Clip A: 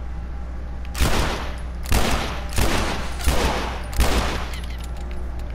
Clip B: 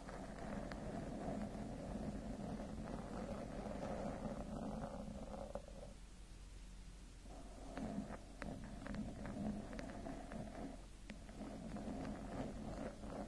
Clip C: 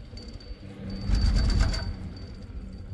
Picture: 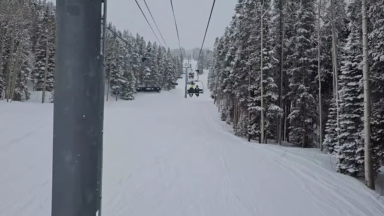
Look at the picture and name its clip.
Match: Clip C